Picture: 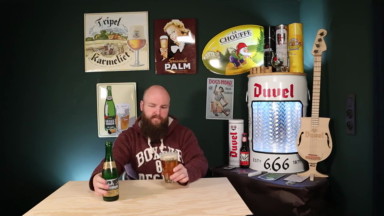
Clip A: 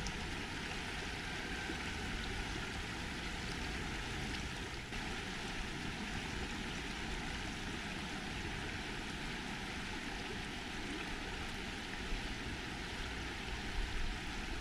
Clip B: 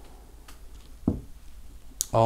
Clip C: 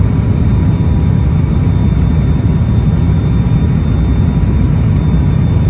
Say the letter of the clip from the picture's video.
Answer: B